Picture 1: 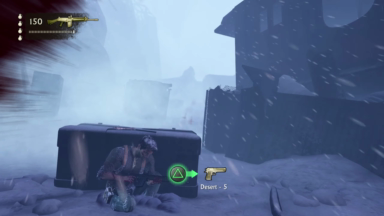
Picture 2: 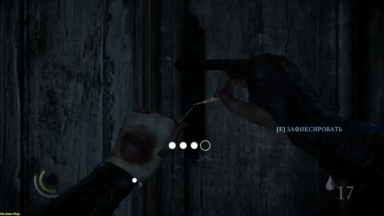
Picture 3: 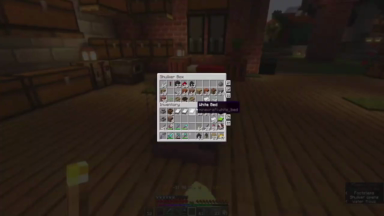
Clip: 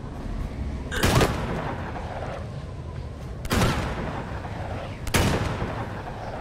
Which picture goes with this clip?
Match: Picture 1